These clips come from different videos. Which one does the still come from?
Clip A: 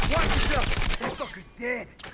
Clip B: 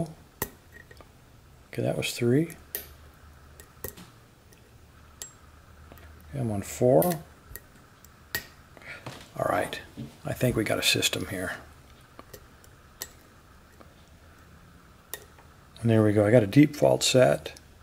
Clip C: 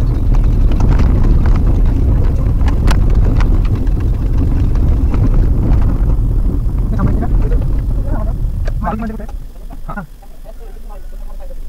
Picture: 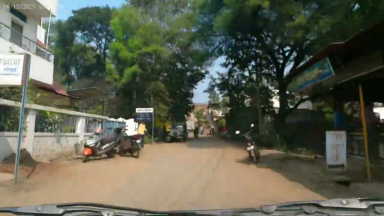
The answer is C